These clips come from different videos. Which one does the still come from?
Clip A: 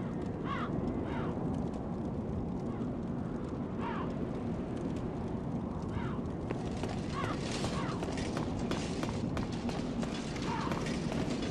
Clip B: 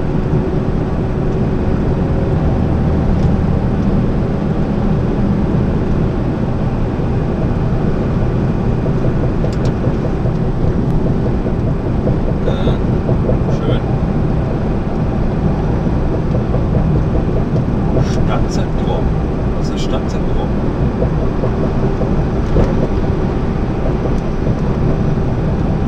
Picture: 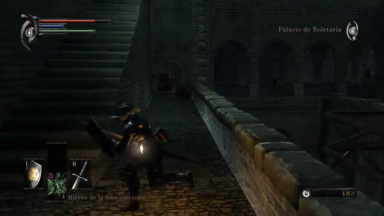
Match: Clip A